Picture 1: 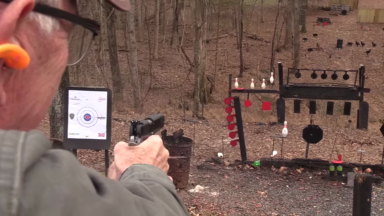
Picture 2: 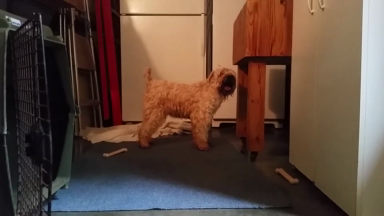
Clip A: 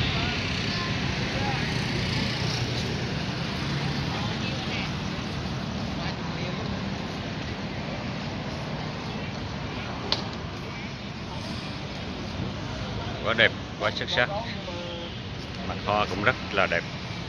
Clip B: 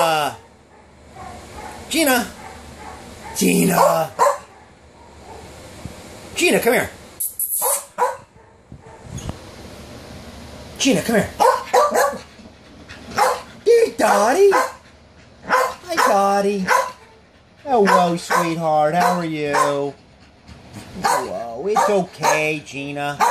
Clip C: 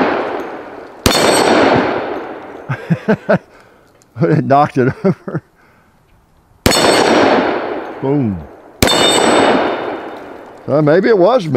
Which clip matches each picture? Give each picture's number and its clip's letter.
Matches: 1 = C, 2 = B